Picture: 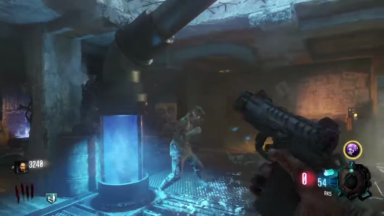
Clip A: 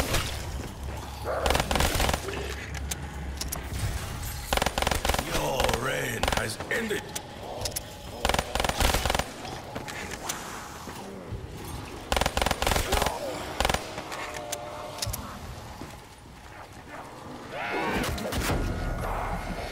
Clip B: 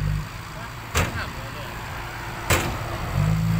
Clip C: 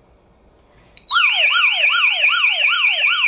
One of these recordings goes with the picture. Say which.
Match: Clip A